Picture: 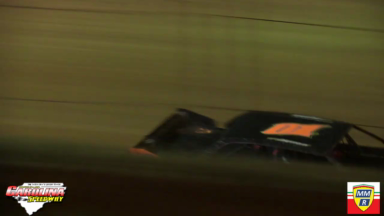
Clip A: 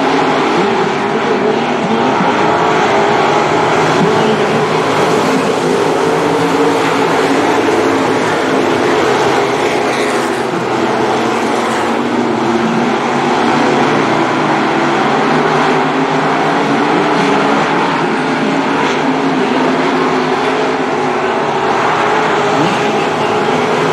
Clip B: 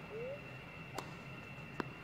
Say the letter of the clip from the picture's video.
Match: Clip A